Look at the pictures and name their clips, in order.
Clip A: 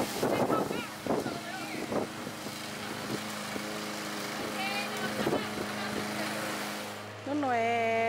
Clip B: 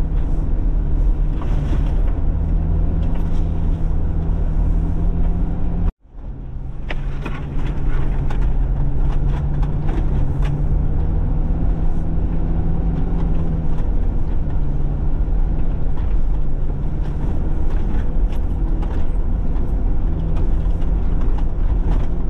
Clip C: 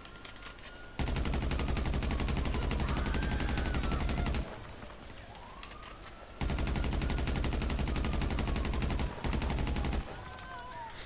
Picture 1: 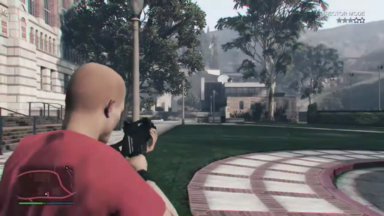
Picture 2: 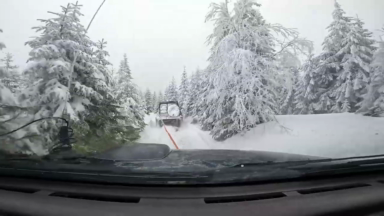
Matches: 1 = C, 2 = B